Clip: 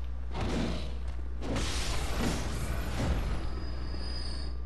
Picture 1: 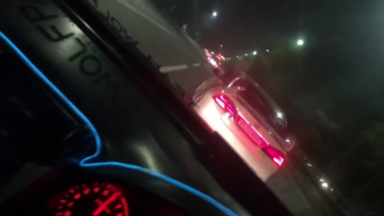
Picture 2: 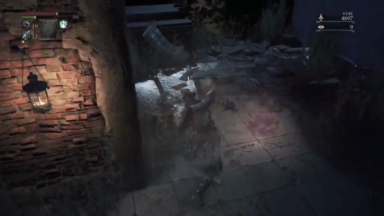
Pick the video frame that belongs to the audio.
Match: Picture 2